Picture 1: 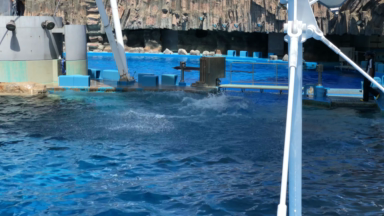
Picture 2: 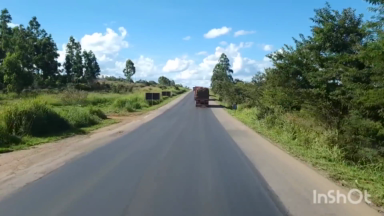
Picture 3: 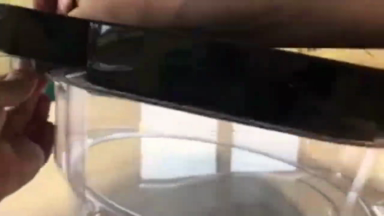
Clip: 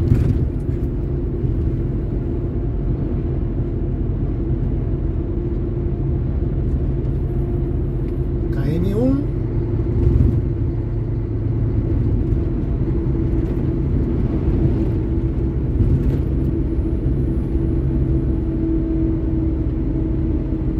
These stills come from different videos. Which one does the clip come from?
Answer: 2